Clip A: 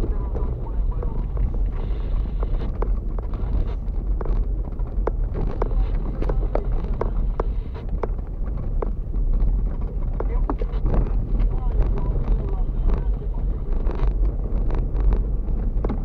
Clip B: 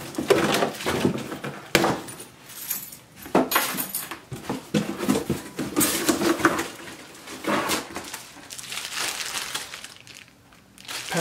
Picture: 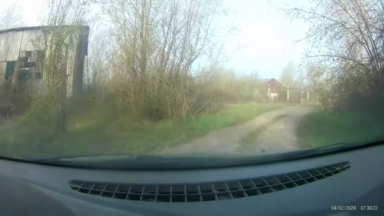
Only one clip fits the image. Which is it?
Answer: A